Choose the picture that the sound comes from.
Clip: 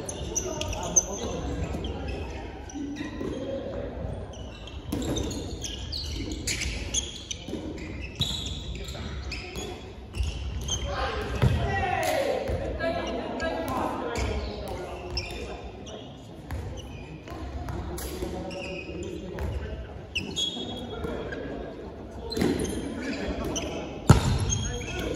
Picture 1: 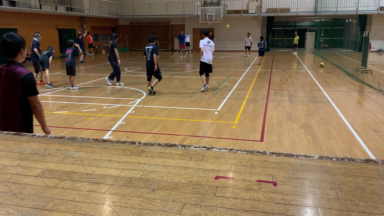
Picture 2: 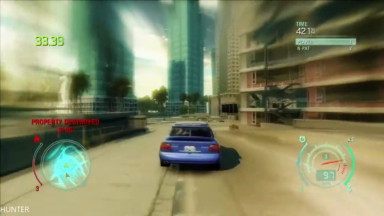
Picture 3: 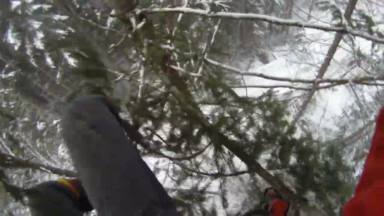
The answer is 1